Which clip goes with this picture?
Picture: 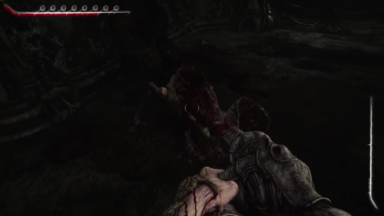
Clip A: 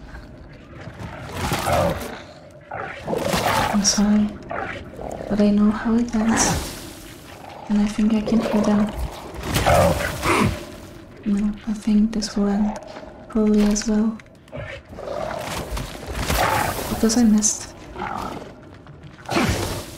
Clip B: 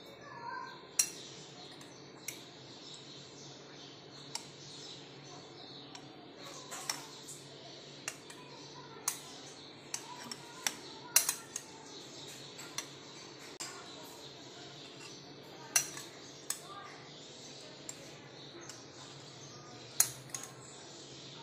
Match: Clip A